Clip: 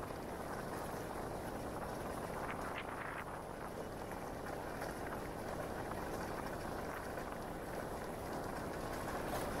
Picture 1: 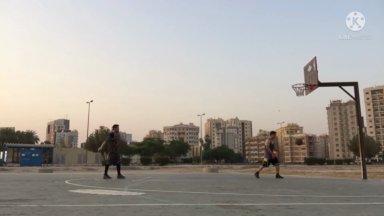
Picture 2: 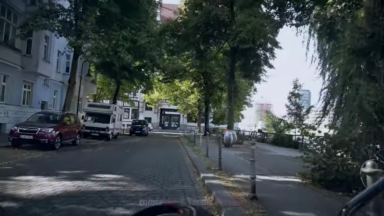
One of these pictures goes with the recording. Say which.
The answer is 2